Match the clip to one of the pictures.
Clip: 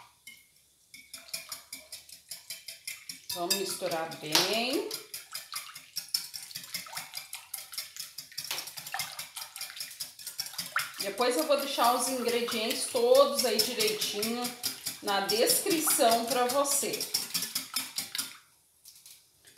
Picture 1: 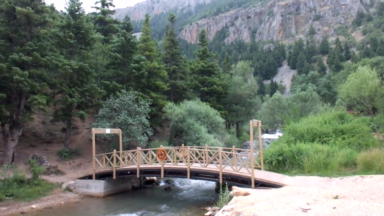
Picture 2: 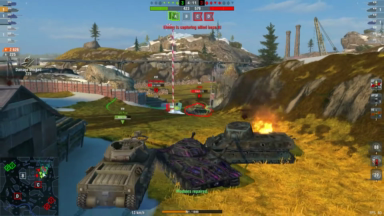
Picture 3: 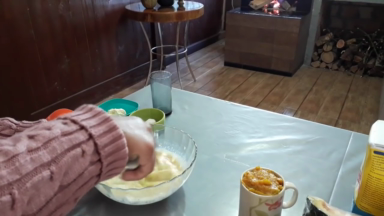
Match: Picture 3